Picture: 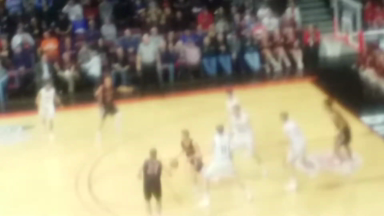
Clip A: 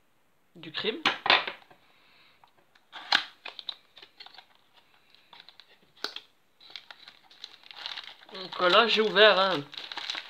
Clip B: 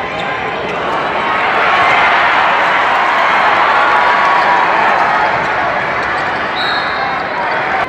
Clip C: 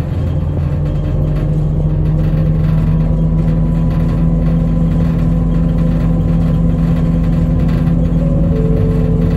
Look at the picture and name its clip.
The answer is B